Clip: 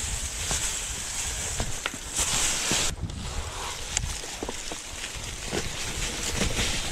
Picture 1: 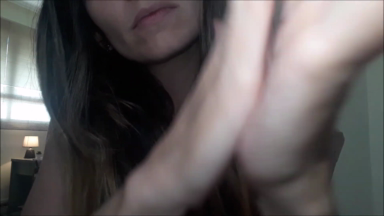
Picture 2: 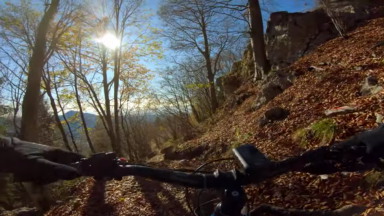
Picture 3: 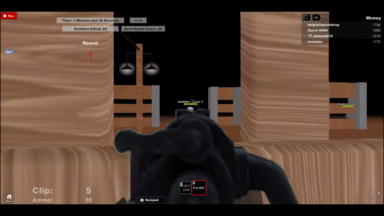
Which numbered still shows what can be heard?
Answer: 2